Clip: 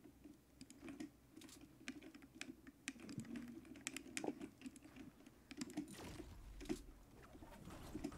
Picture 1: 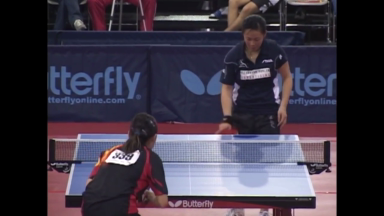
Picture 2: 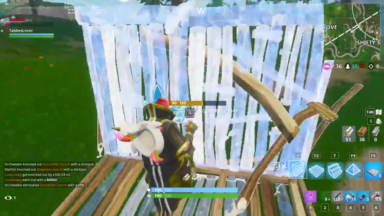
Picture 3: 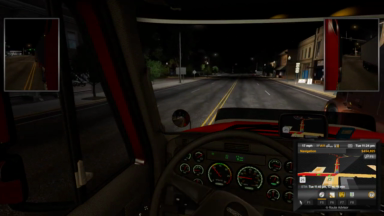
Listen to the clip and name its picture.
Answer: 2